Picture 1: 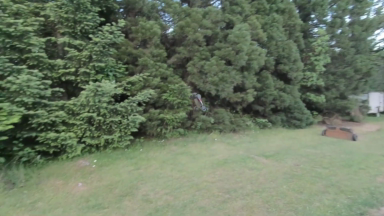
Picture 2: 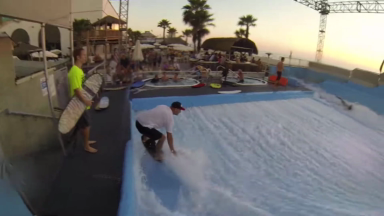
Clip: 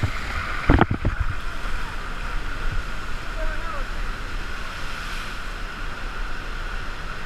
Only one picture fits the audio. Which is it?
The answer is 2